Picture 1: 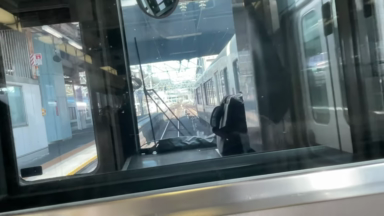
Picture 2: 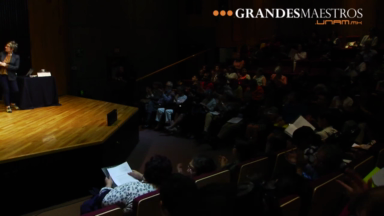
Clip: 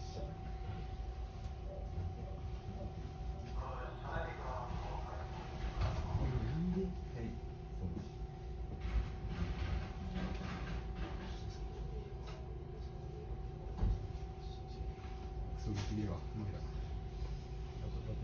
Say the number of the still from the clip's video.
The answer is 1